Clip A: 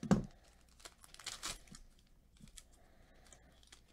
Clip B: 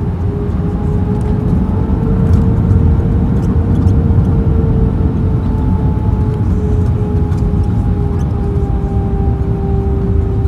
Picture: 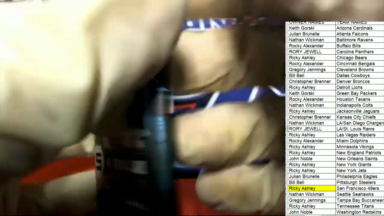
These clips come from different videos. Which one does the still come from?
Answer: A